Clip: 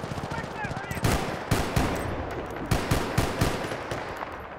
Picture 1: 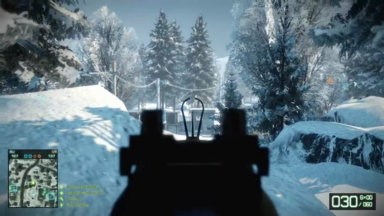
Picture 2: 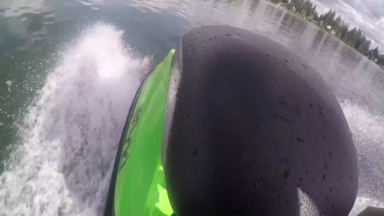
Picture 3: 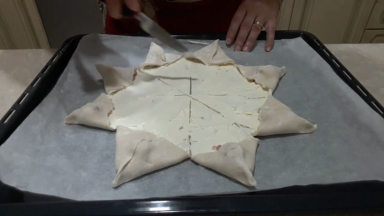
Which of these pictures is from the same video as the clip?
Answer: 1